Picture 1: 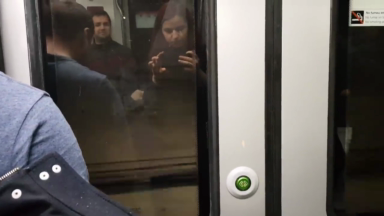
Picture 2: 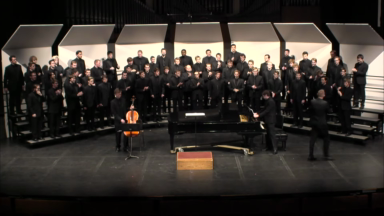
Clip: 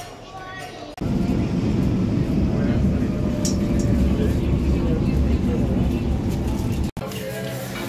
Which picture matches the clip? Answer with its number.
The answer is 1